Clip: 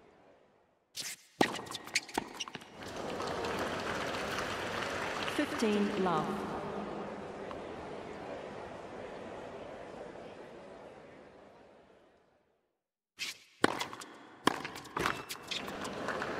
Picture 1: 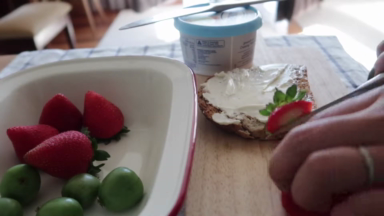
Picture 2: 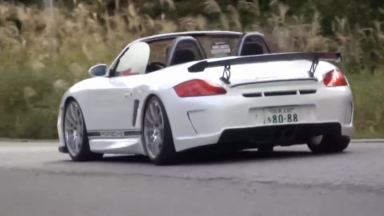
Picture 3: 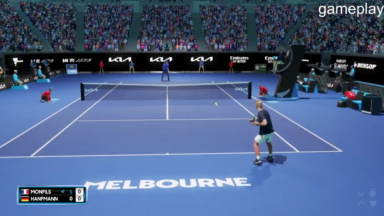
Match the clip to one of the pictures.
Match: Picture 3